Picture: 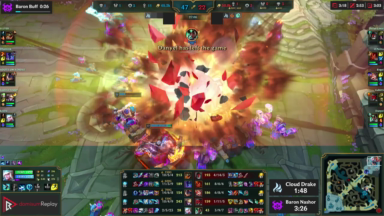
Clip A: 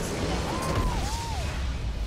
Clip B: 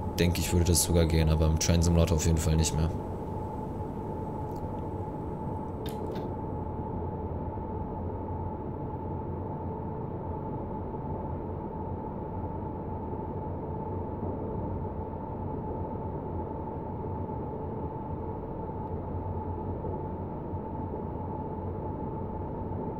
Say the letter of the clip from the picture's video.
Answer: A